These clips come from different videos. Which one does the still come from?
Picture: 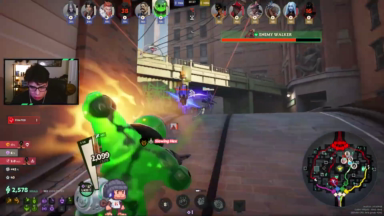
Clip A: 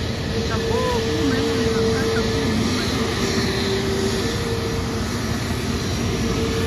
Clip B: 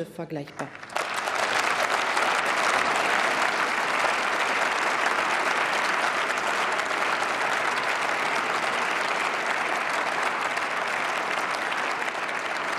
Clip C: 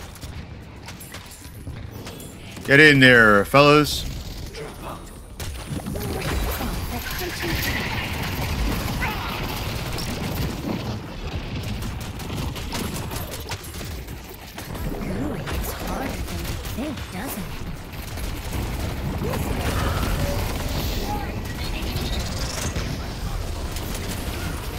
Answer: C